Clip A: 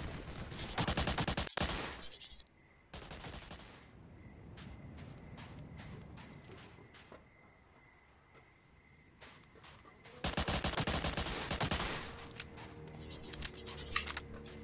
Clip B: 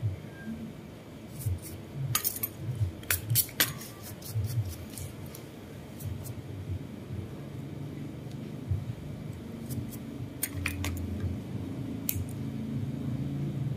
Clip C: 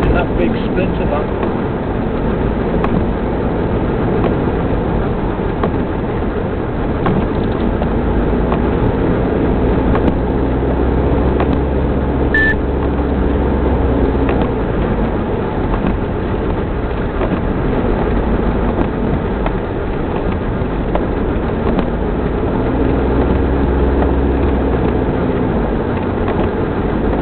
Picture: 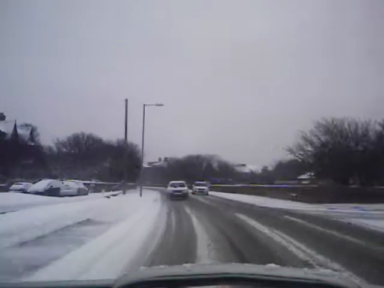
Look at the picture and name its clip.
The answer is C